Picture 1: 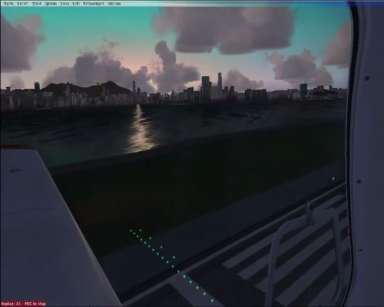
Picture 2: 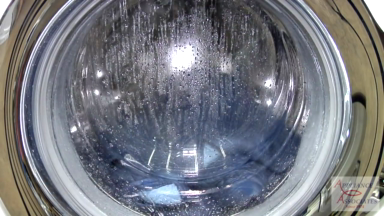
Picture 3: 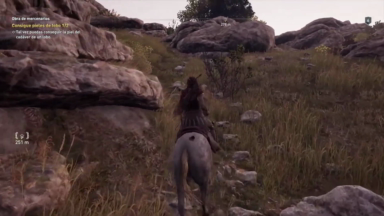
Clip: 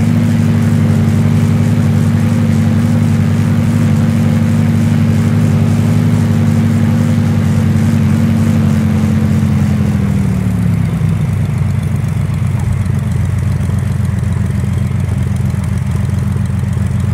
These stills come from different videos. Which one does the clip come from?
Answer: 1